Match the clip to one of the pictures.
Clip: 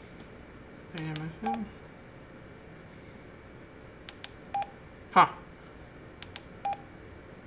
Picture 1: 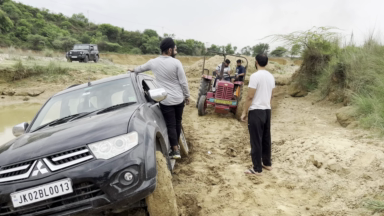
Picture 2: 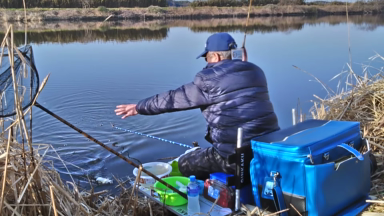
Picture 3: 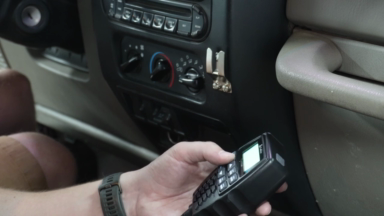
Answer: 3